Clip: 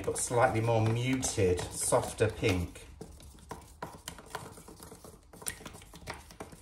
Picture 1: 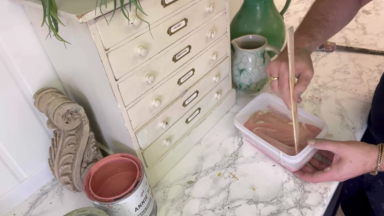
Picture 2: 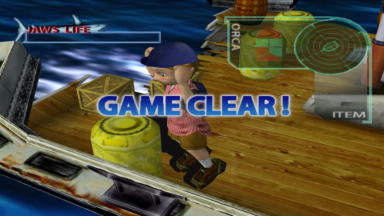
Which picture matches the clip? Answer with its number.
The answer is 1